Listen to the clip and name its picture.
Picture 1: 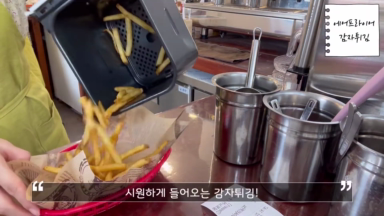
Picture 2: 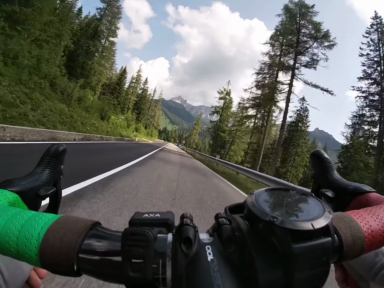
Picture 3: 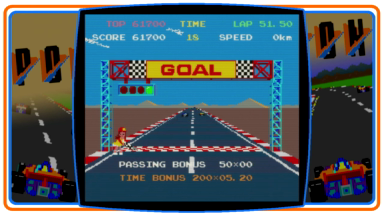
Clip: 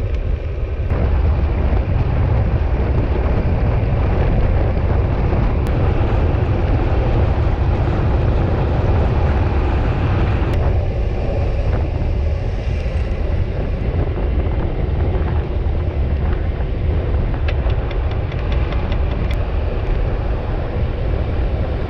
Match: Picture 2